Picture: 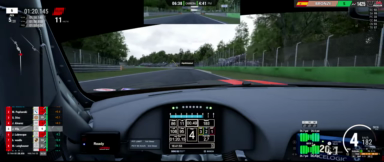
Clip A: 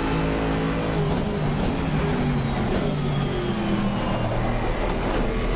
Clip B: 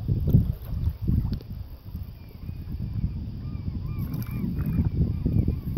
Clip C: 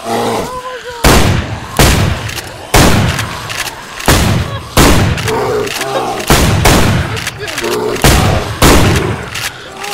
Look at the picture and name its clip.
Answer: A